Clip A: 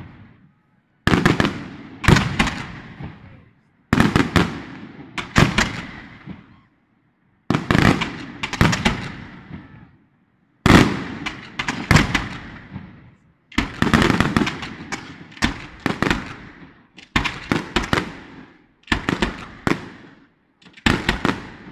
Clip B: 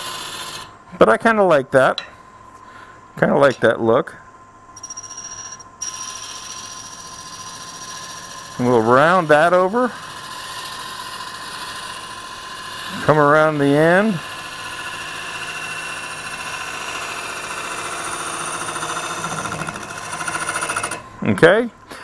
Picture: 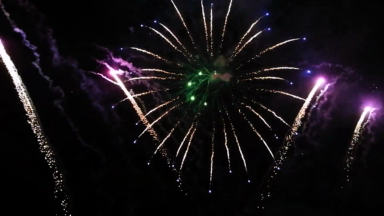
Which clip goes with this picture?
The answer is A